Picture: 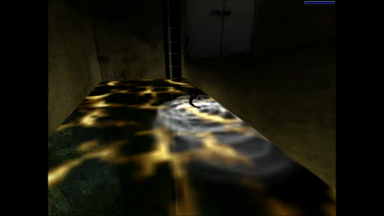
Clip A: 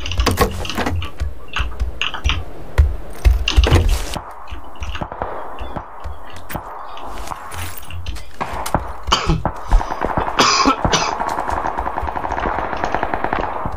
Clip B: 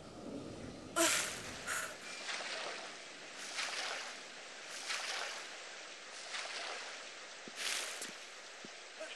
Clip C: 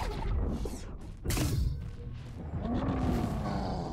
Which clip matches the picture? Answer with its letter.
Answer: B